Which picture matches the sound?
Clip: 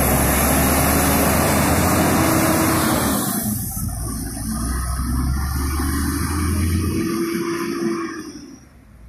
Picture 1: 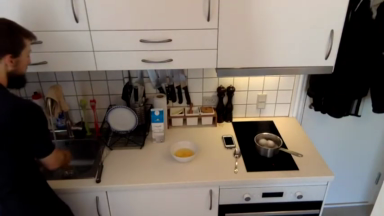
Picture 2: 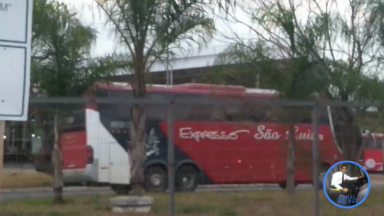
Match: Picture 2